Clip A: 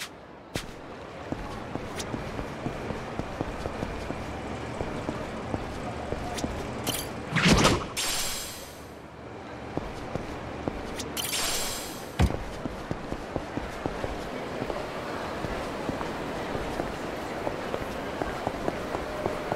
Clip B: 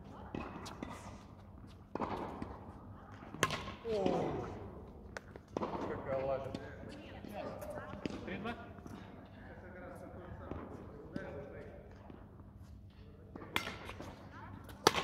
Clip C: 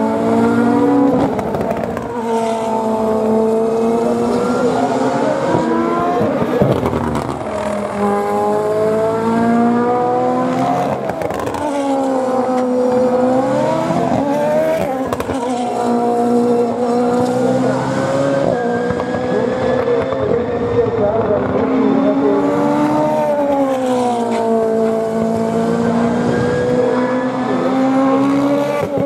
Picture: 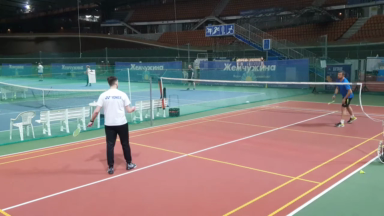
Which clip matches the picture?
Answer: B